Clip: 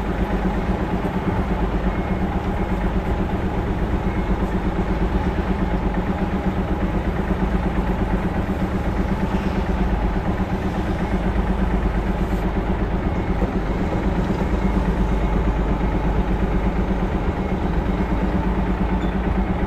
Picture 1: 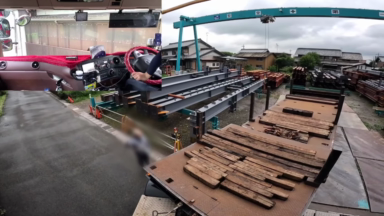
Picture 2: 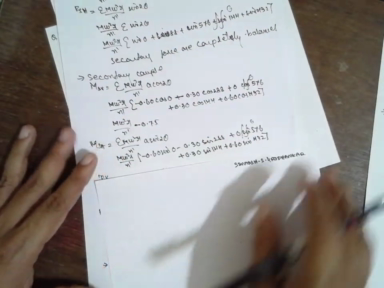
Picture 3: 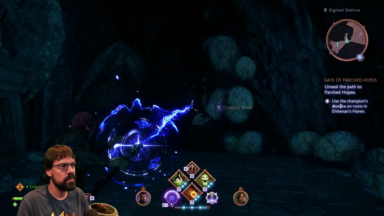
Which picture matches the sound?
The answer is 1